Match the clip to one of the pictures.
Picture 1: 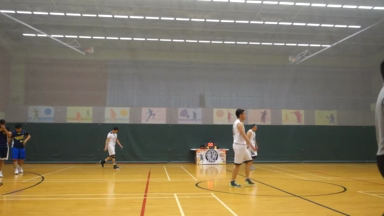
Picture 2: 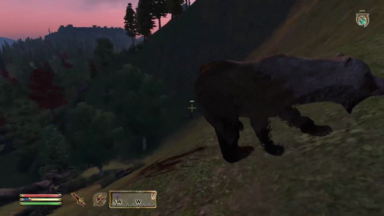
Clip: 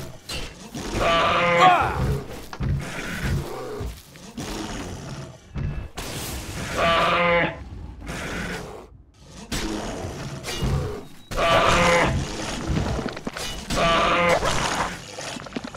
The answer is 2